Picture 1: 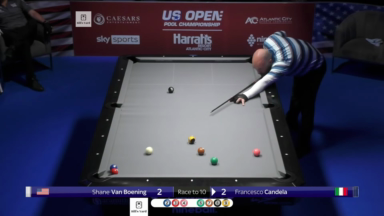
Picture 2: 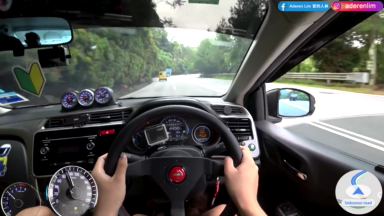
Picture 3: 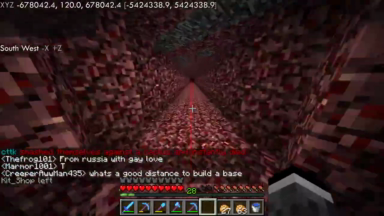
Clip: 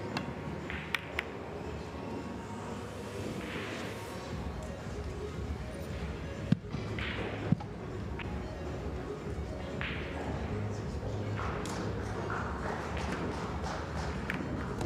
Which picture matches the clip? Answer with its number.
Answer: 1